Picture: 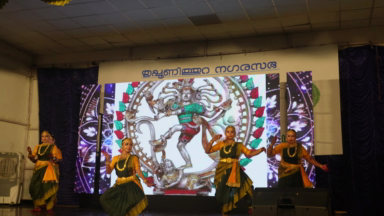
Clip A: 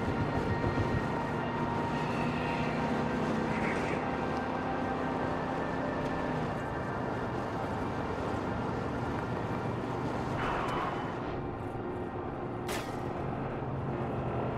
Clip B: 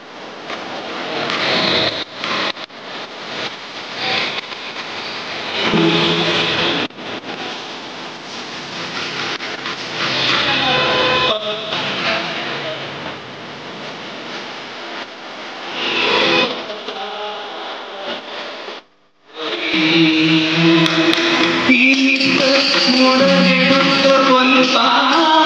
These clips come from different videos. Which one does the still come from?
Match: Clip B